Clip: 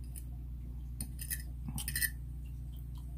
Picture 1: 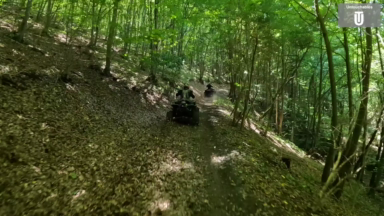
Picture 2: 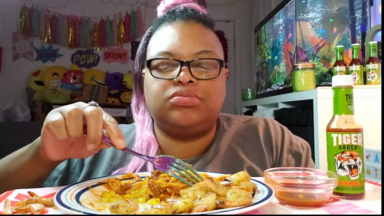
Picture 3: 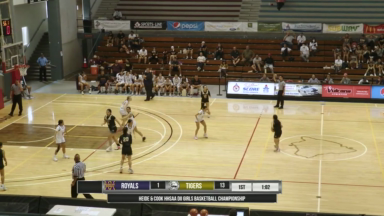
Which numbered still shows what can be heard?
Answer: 2